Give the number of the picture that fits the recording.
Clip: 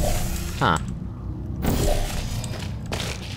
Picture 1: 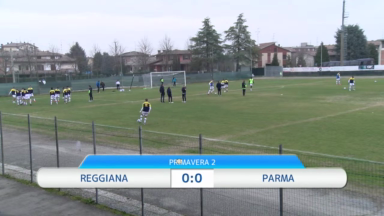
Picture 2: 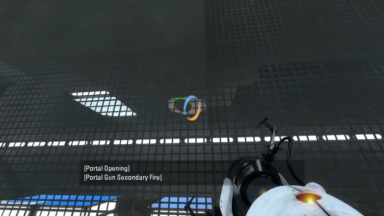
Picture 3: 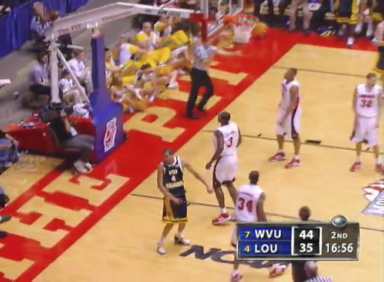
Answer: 2